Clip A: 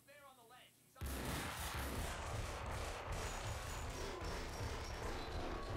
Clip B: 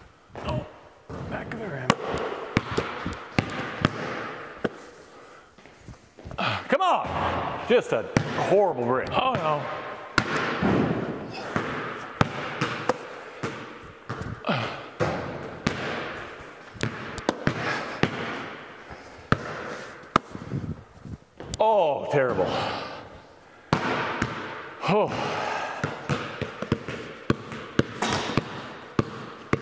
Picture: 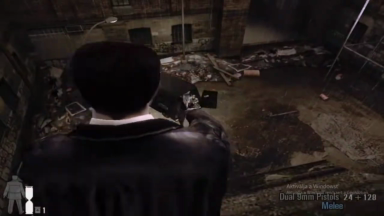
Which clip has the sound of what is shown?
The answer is A